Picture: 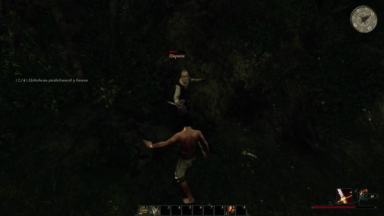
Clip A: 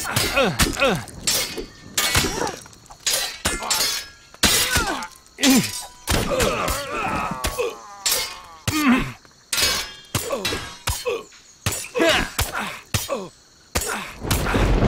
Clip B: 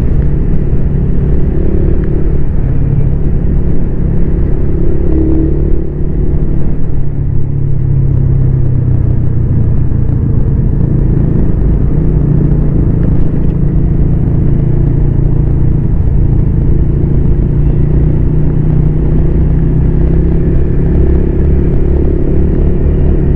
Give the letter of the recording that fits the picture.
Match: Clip A